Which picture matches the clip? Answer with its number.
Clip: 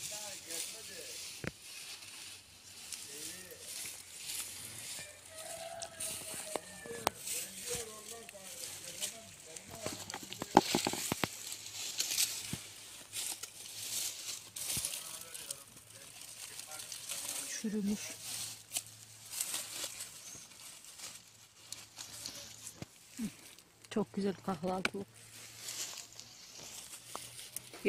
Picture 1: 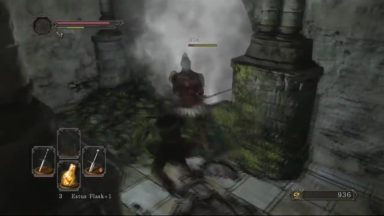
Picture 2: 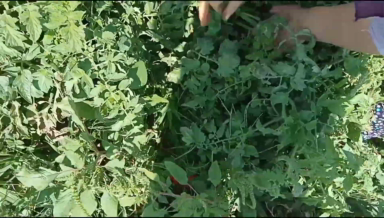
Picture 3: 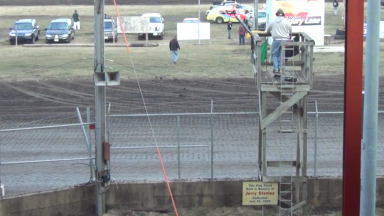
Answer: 2